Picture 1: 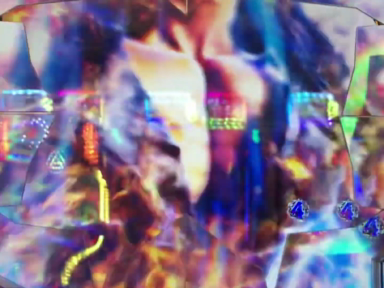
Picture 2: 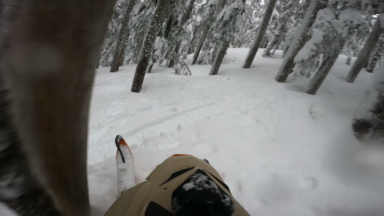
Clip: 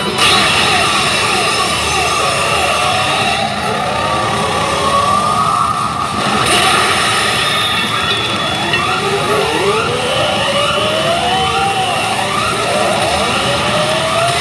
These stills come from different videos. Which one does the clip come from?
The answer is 1